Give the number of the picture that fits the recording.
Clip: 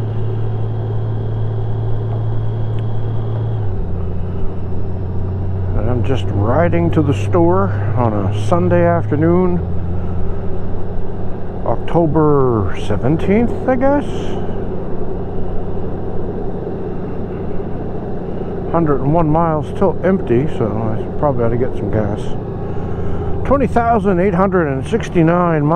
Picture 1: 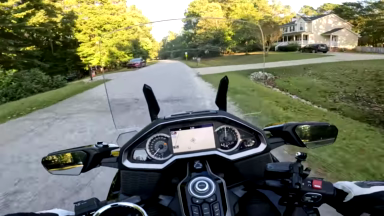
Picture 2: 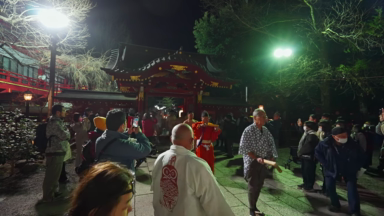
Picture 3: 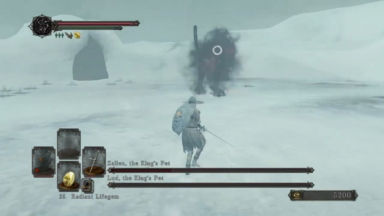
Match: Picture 1